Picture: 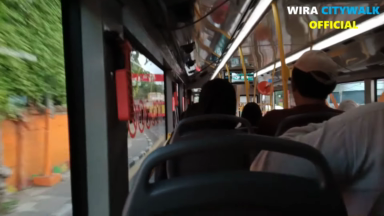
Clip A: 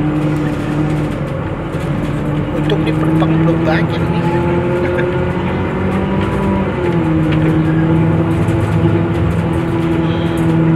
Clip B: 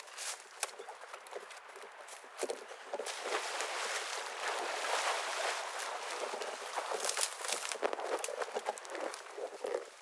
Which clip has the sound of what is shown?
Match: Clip A